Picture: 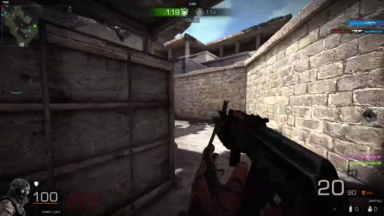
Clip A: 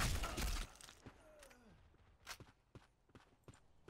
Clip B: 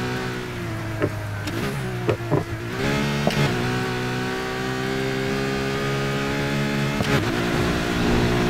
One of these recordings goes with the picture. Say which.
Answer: A